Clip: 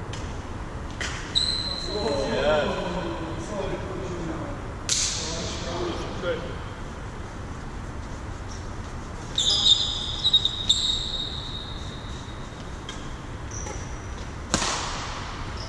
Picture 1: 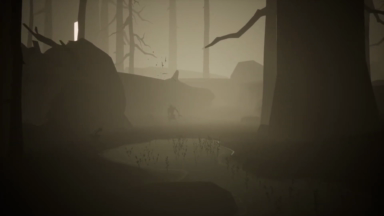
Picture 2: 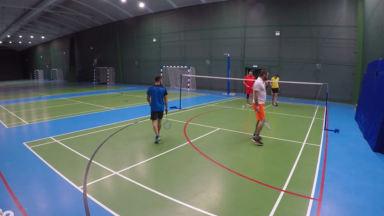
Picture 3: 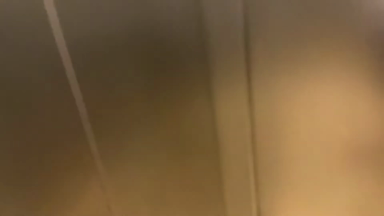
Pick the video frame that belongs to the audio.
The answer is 2